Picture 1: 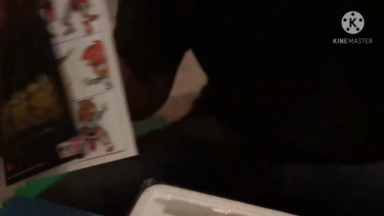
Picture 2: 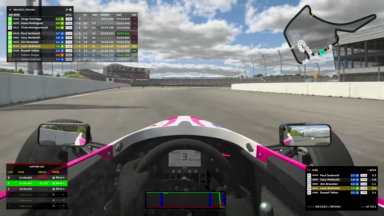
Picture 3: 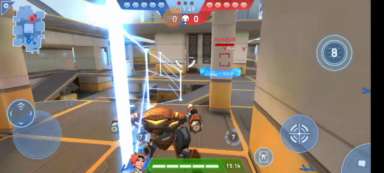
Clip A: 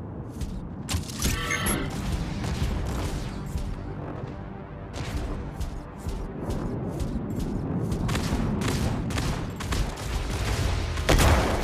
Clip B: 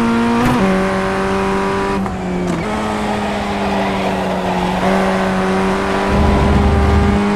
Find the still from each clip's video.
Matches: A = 3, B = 2